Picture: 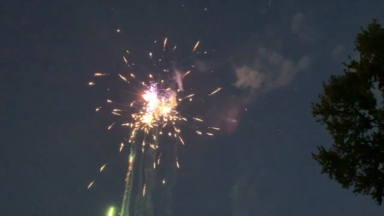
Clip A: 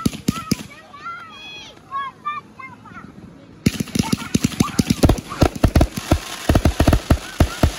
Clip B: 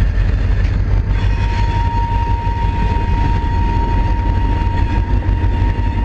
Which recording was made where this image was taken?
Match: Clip A